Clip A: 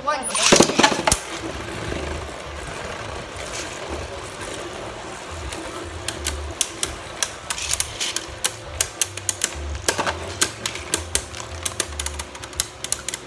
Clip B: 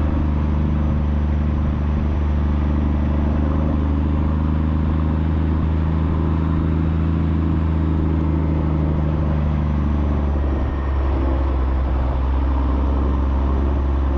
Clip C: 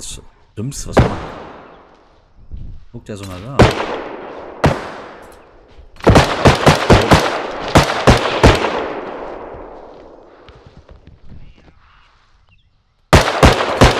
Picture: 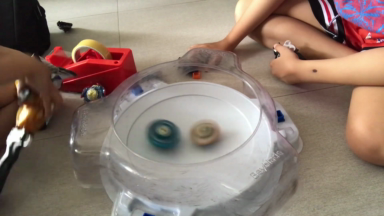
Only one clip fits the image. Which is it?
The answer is A